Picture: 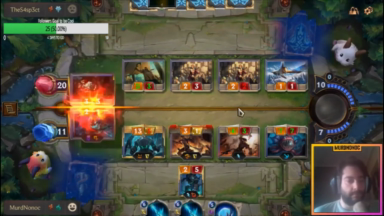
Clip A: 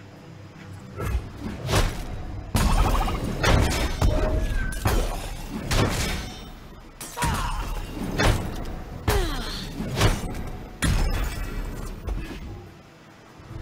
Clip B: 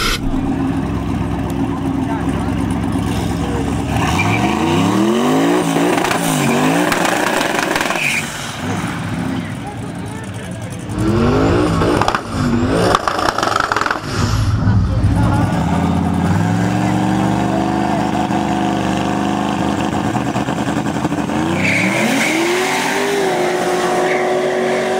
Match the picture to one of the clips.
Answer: A